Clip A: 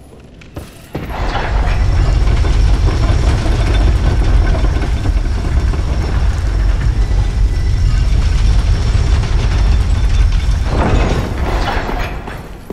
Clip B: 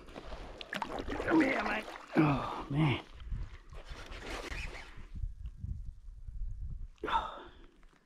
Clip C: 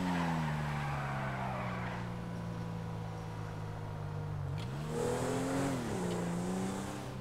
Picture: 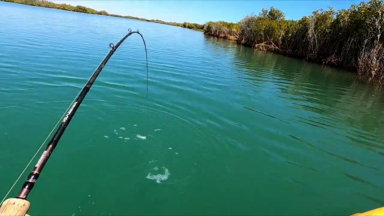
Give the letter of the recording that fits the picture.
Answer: B